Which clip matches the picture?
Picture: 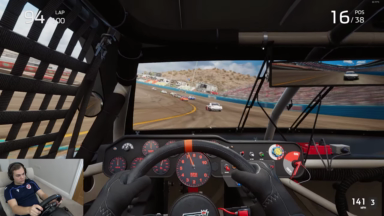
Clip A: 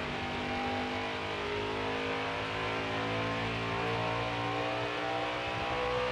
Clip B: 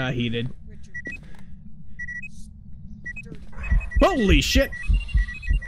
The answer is A